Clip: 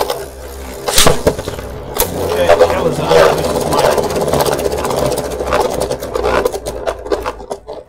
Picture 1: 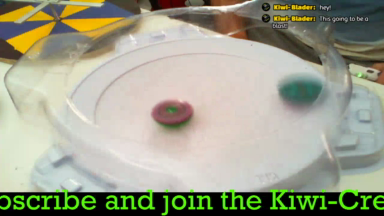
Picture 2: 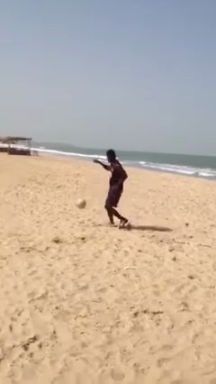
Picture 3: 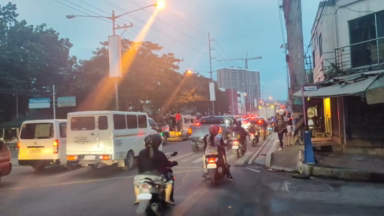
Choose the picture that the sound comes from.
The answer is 1